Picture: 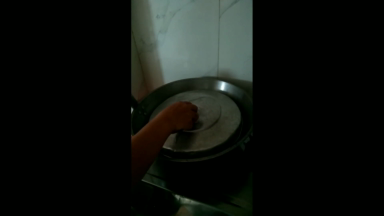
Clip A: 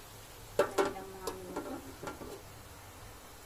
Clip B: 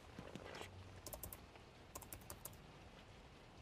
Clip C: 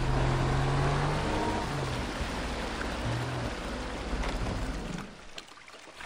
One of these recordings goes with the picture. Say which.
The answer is A